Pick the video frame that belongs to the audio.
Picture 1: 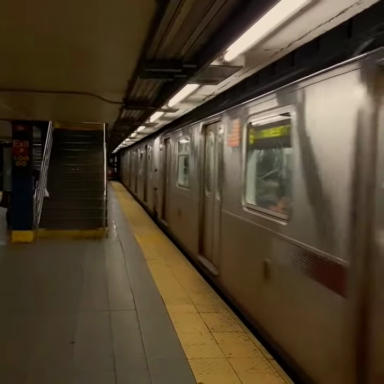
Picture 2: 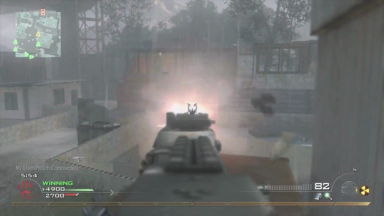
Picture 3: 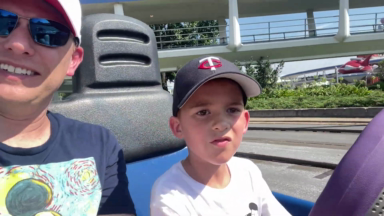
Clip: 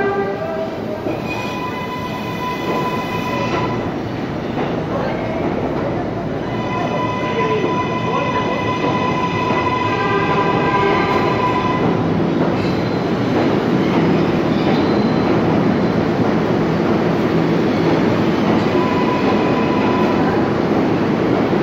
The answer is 1